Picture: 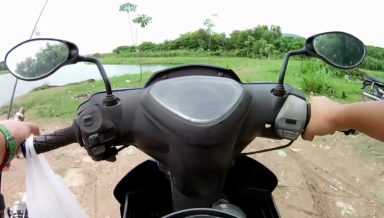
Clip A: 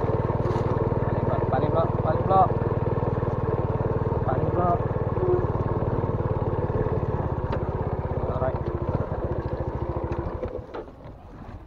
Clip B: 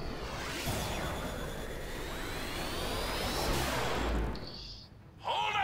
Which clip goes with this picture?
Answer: A